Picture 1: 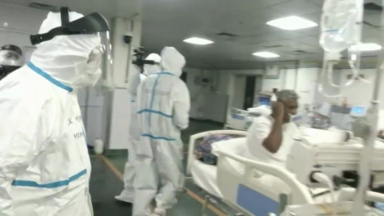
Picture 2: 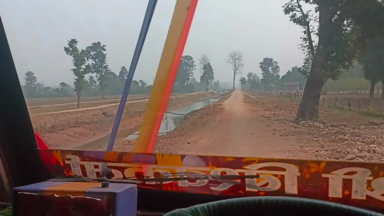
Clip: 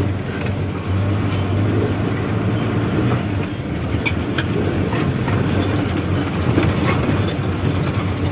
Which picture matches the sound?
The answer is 2